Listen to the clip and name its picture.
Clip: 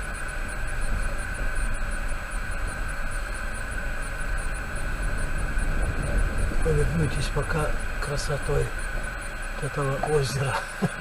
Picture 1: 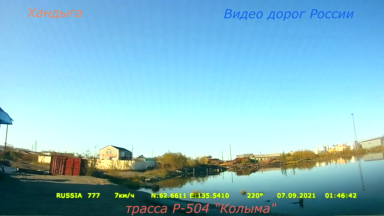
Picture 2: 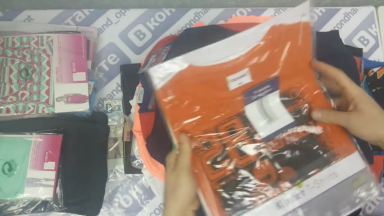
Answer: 1